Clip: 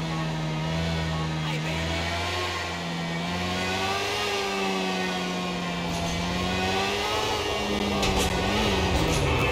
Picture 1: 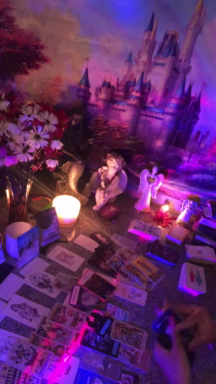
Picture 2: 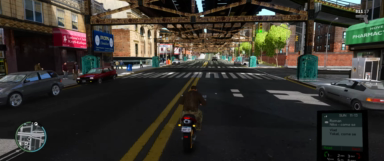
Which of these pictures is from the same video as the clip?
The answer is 2